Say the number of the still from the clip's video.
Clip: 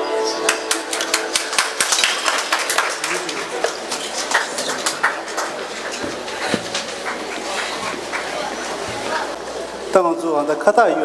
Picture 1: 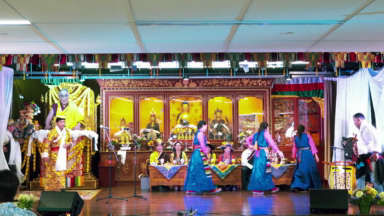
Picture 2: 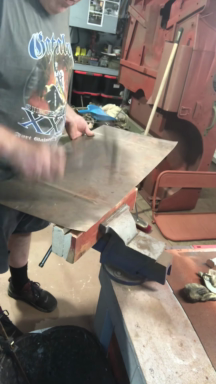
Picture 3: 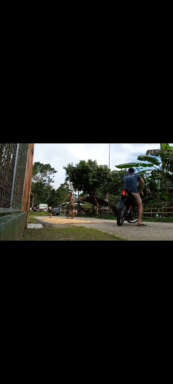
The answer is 1